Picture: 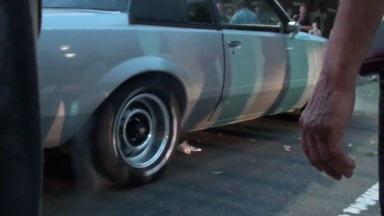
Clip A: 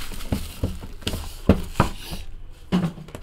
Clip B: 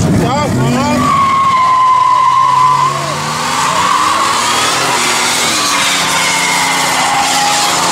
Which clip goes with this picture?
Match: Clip B